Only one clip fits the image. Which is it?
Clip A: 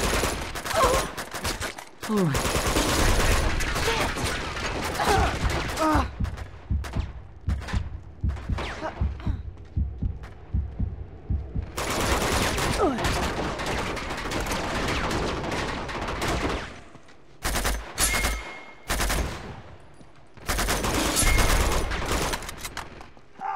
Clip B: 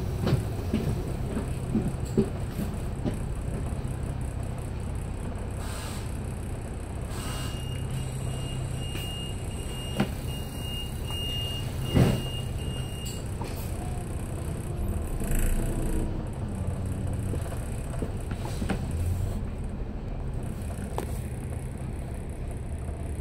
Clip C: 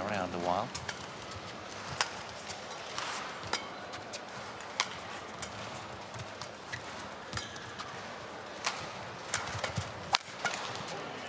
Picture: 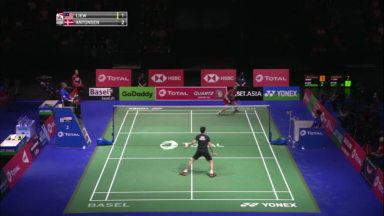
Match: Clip C